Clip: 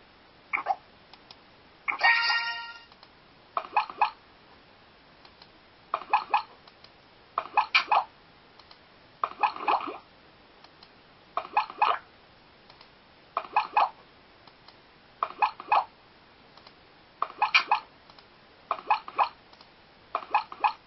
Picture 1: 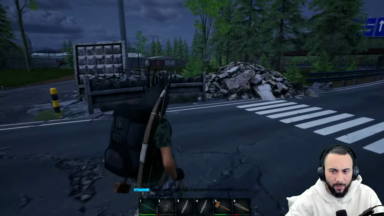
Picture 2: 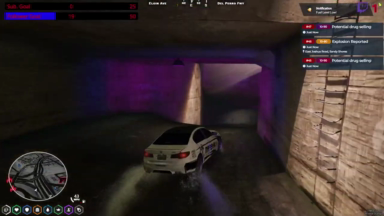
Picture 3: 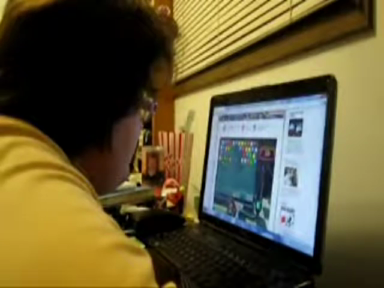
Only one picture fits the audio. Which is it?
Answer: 3